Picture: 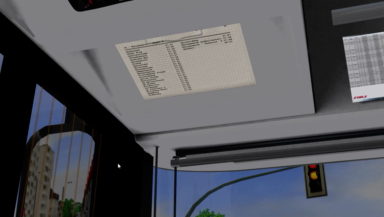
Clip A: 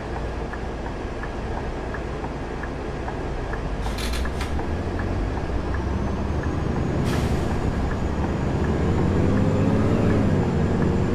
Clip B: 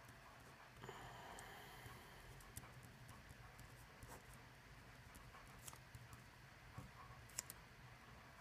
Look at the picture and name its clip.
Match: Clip A